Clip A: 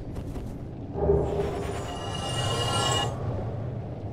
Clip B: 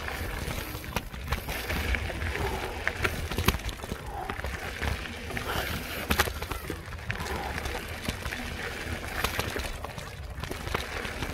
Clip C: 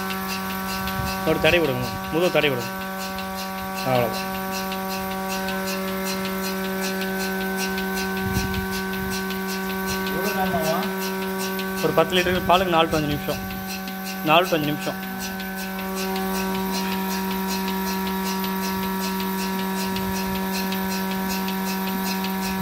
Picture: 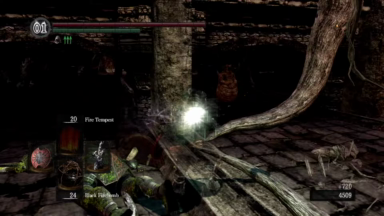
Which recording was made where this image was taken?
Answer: A